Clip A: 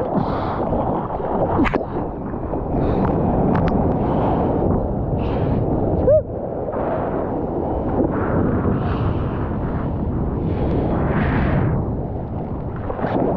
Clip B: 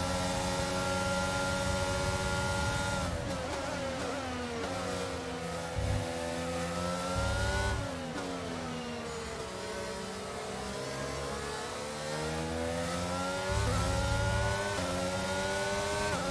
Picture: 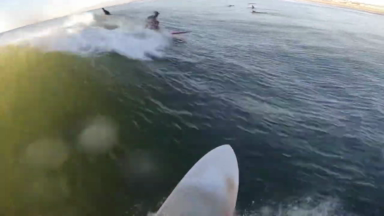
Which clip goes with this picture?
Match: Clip A